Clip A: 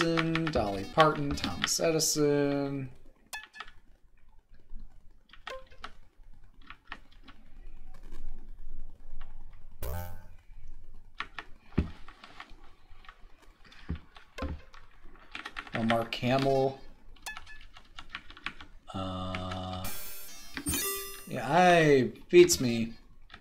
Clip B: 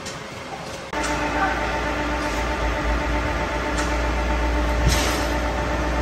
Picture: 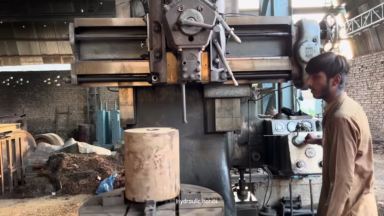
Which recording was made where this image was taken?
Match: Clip B